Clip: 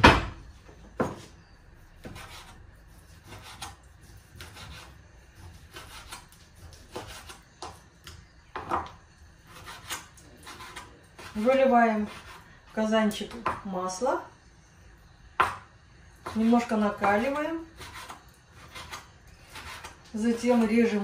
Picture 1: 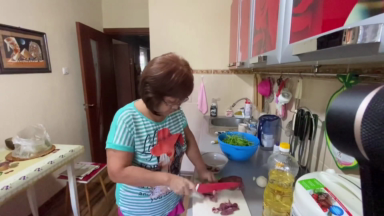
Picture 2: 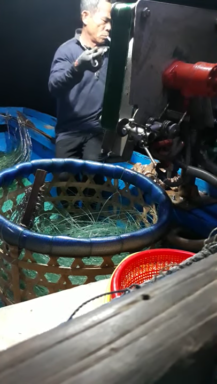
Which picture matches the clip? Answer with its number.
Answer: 1